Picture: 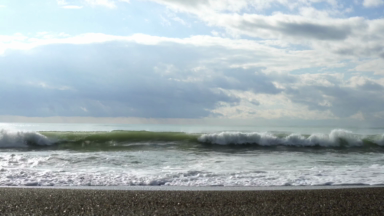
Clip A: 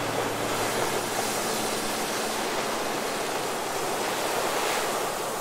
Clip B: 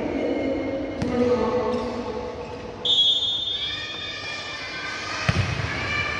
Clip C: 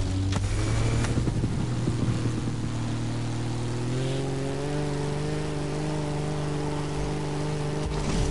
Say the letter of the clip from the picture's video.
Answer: A